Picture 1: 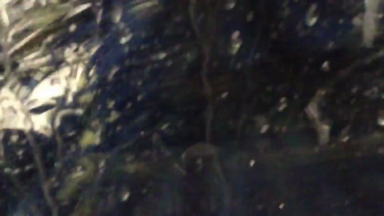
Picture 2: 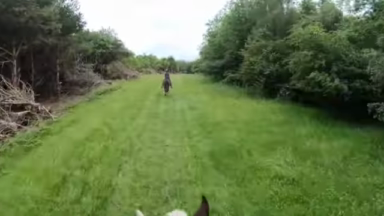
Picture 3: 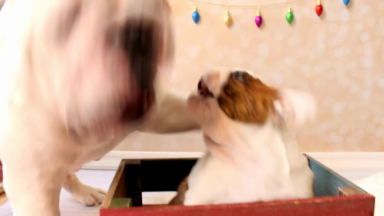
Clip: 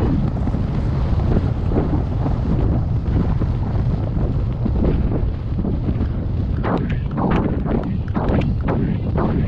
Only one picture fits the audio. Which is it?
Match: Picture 2